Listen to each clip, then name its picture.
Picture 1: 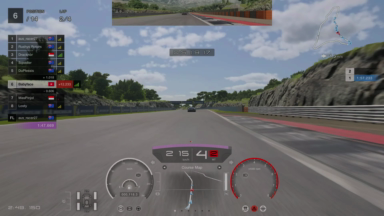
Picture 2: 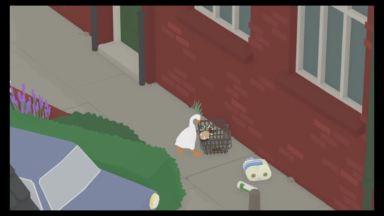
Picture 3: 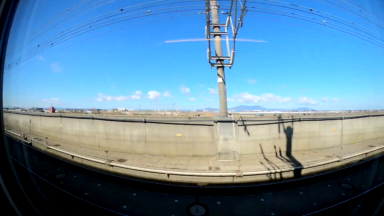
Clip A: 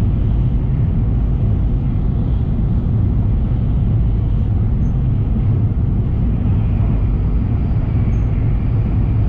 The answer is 3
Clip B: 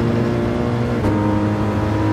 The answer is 1